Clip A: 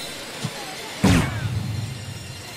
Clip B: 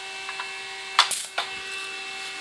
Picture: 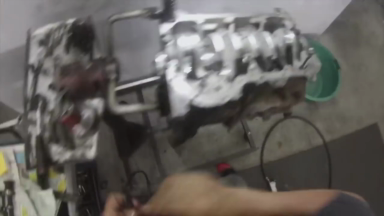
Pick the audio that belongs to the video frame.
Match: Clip B